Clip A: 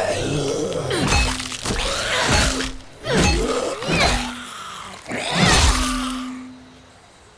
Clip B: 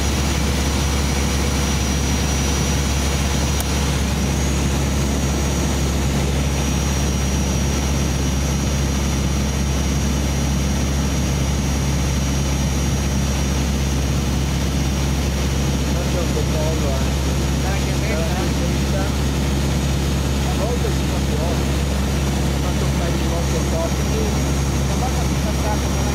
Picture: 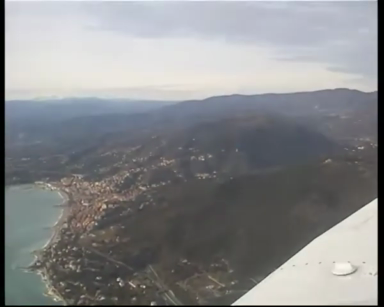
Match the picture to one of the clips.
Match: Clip B